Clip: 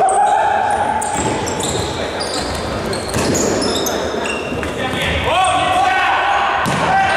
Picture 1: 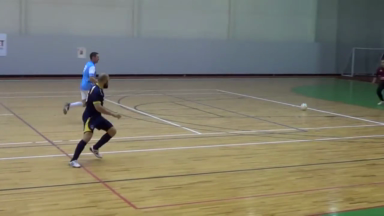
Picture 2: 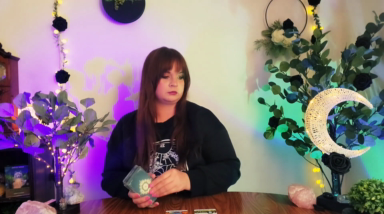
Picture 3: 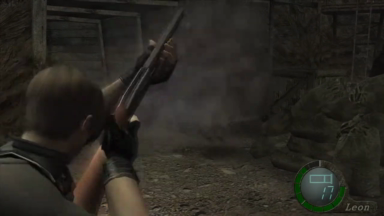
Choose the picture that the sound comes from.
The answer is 1